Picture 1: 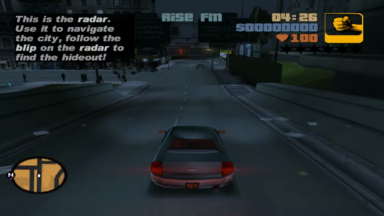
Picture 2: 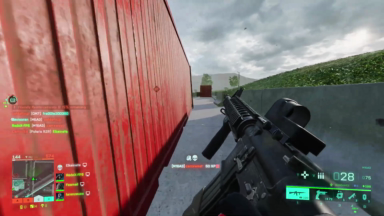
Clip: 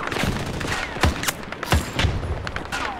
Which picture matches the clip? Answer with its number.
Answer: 2